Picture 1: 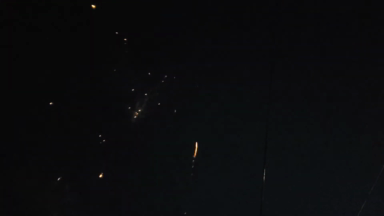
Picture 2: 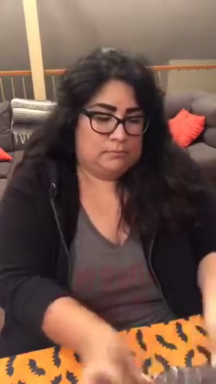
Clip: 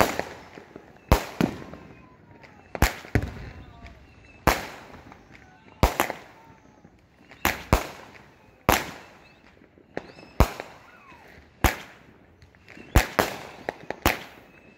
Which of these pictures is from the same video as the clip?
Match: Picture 1